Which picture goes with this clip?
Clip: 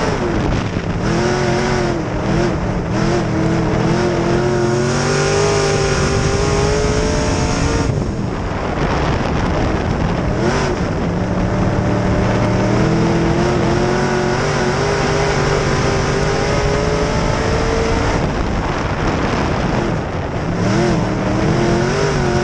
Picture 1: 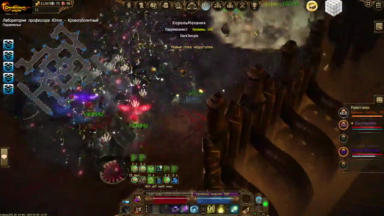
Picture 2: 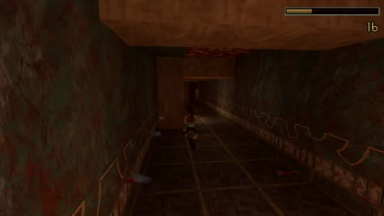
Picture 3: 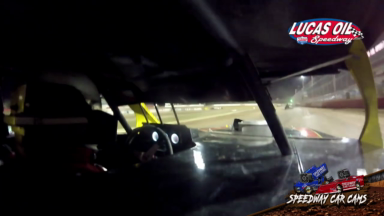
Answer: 3